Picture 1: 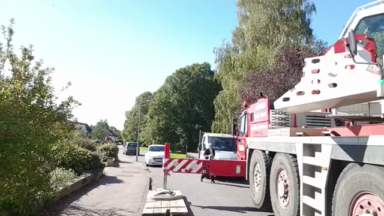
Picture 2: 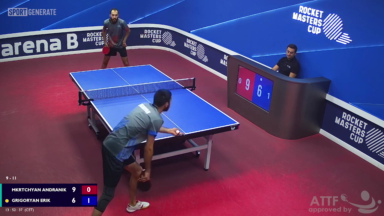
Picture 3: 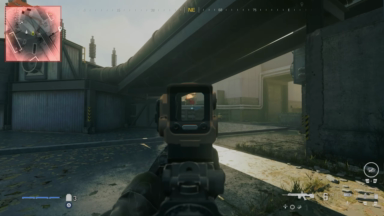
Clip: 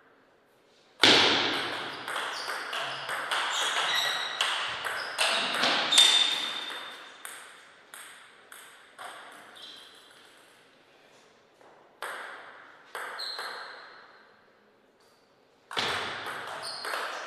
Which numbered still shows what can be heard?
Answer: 2